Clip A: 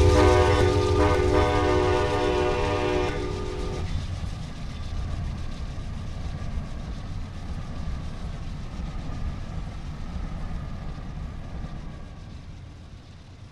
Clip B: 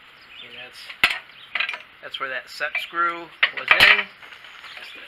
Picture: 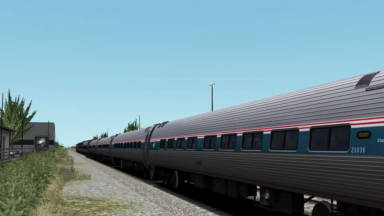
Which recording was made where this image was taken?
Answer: A